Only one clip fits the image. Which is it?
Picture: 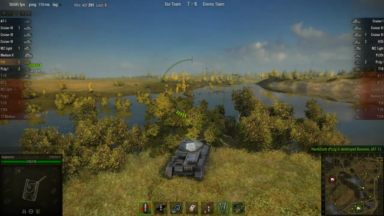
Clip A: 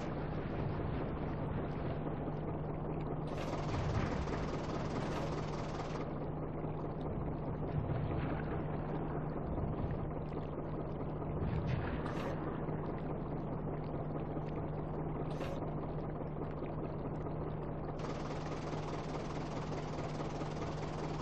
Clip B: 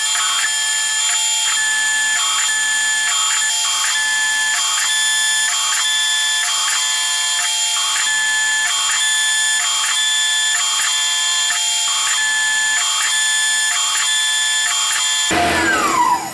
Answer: A